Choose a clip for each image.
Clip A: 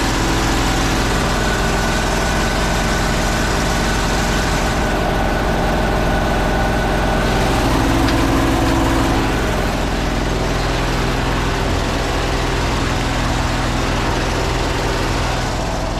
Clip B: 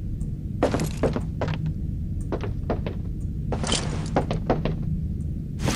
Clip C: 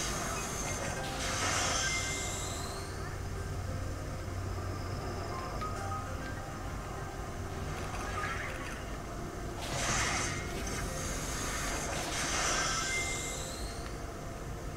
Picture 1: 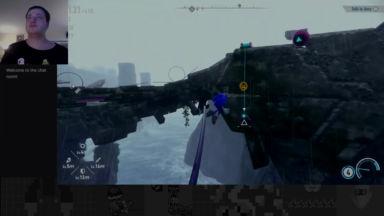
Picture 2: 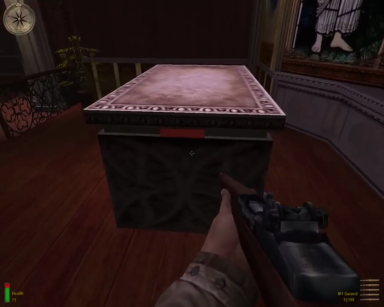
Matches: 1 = C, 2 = B